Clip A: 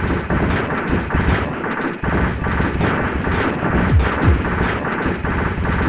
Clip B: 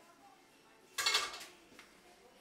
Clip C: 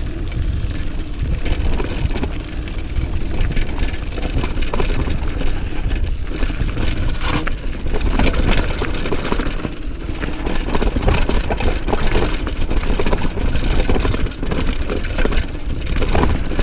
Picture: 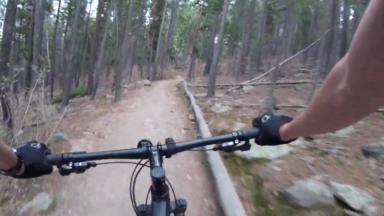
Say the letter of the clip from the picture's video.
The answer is C